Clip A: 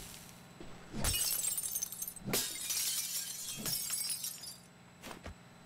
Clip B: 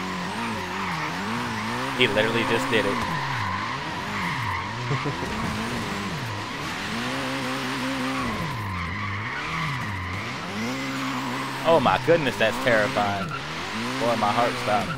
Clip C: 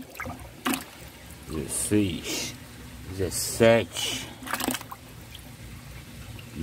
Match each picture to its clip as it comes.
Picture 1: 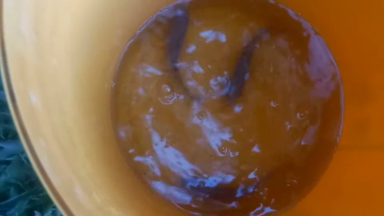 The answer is C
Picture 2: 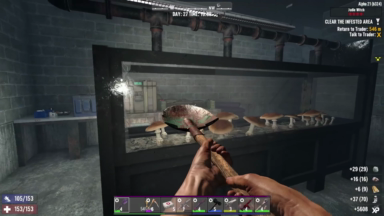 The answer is A